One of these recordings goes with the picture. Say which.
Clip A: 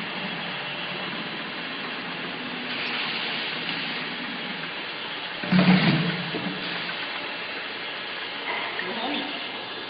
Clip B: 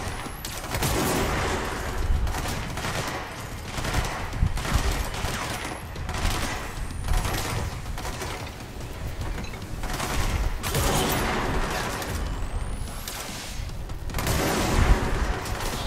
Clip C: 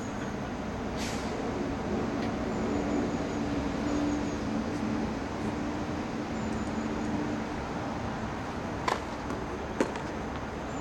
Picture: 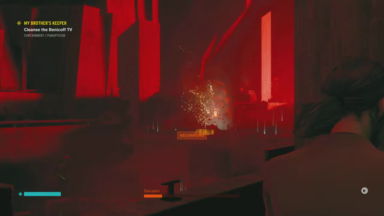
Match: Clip B